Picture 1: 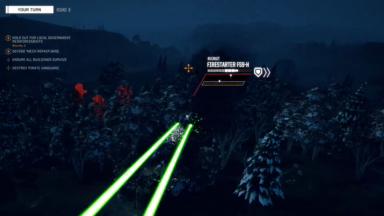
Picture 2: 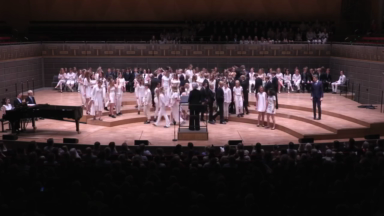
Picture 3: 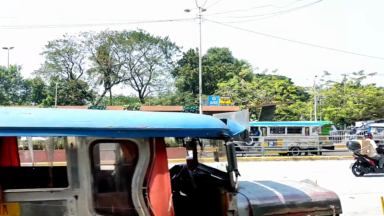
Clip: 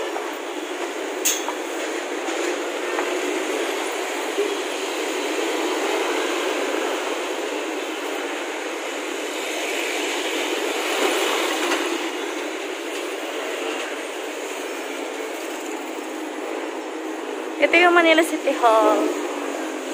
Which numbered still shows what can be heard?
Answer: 3